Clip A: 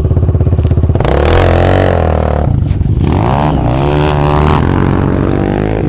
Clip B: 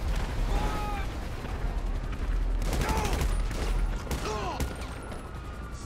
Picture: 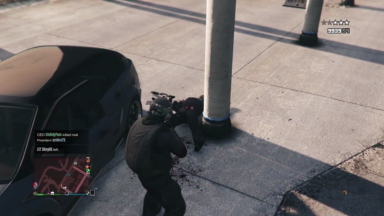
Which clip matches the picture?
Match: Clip B